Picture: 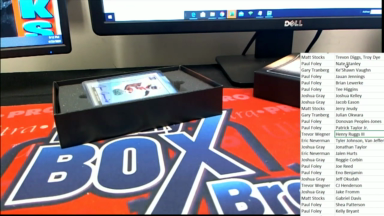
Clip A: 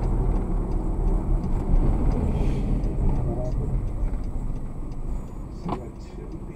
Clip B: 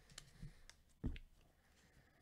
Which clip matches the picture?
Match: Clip B